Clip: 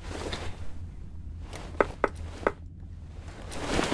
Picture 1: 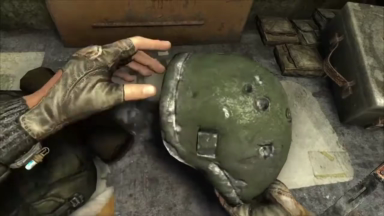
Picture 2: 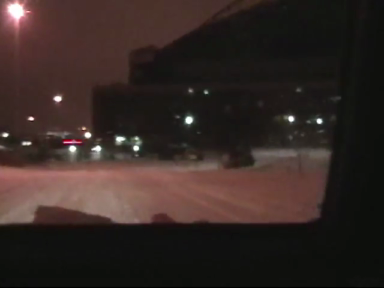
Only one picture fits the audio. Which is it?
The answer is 1